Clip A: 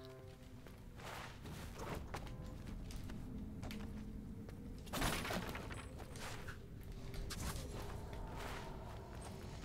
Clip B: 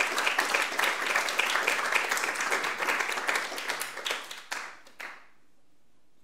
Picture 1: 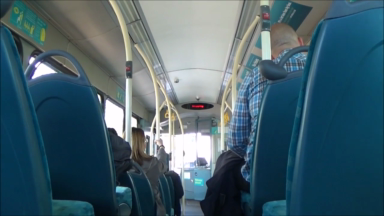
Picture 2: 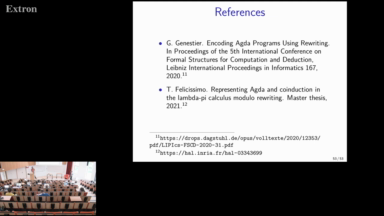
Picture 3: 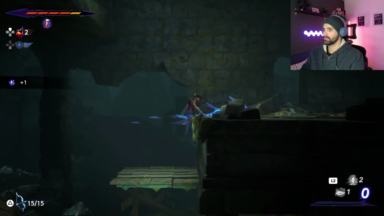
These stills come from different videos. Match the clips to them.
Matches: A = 3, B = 2